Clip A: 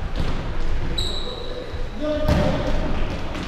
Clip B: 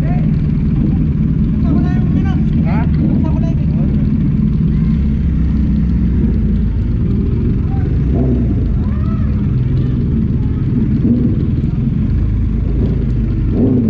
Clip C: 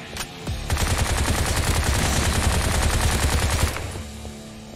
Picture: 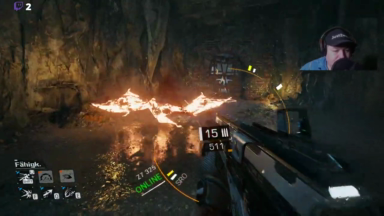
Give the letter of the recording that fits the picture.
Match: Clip C